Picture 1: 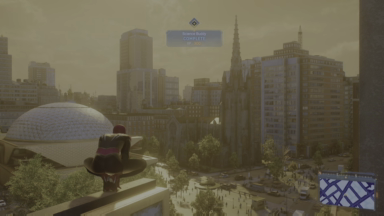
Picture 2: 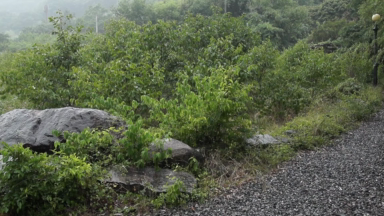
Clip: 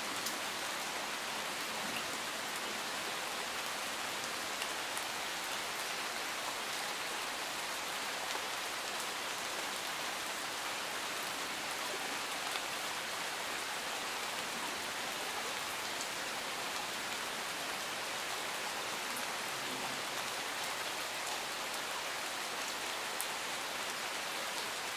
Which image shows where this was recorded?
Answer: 2